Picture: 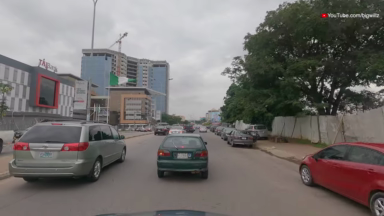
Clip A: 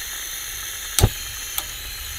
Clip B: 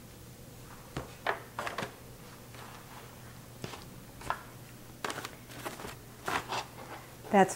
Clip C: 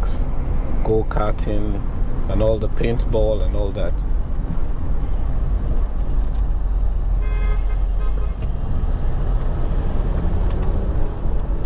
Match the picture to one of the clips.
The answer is C